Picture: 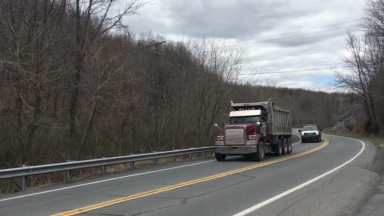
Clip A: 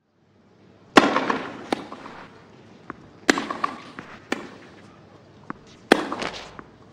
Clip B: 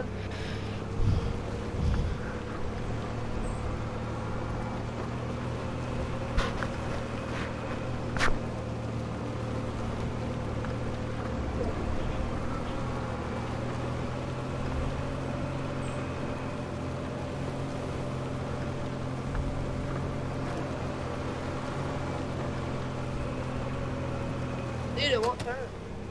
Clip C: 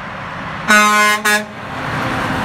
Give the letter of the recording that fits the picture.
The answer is C